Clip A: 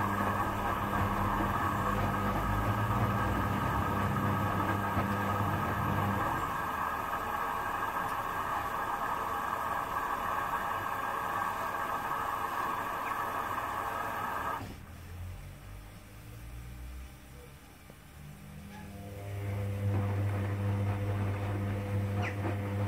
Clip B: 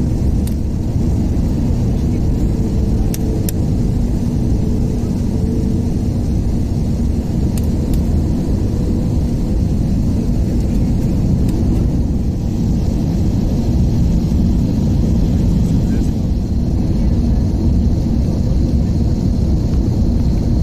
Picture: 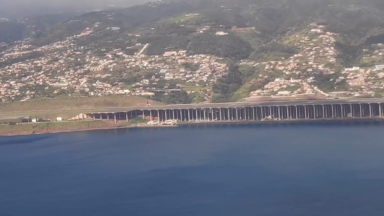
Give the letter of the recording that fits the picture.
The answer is B